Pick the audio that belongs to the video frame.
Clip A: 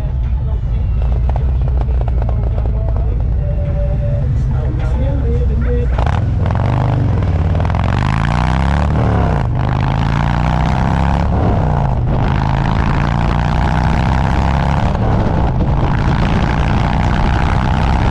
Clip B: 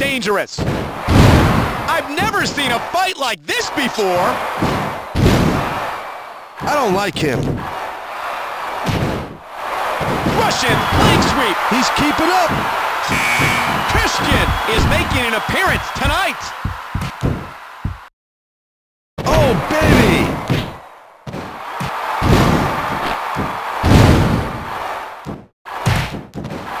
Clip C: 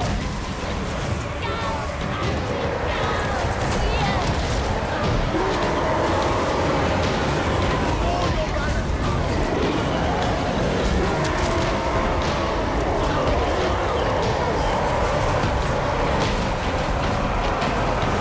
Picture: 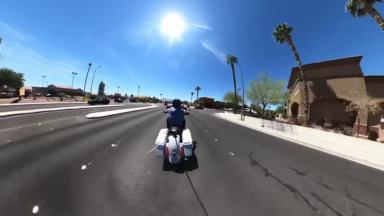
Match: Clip A